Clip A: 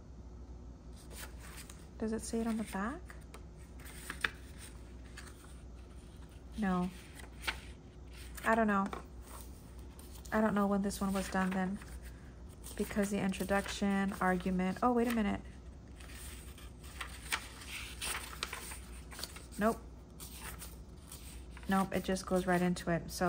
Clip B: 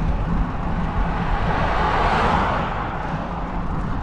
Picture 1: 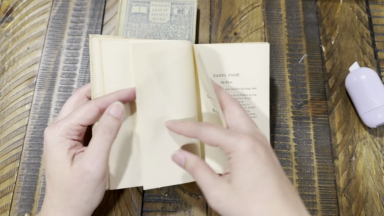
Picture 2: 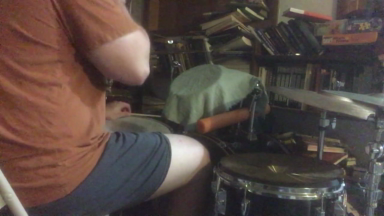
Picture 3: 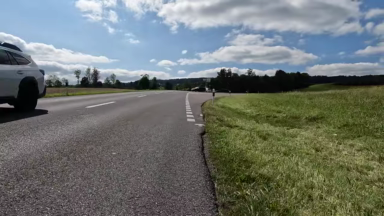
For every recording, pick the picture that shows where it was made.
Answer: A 1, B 3